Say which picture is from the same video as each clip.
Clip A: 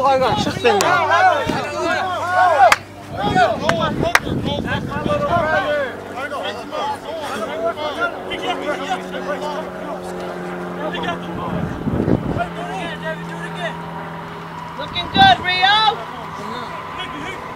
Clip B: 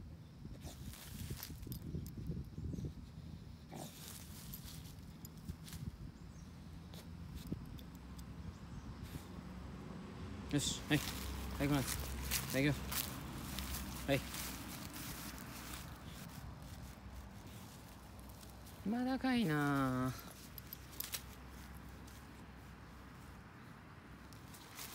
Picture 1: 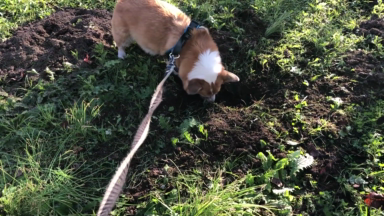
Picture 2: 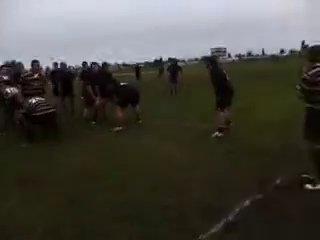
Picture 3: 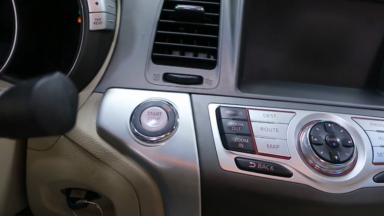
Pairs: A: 2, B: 1